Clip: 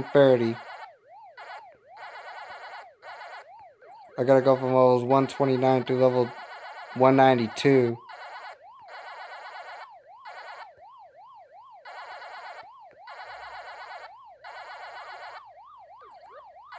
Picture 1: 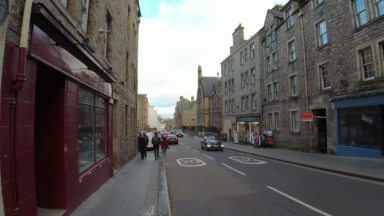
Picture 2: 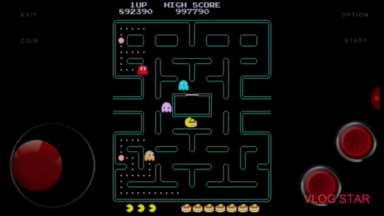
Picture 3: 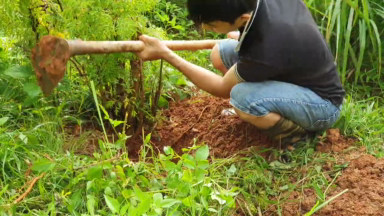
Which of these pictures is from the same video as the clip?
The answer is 2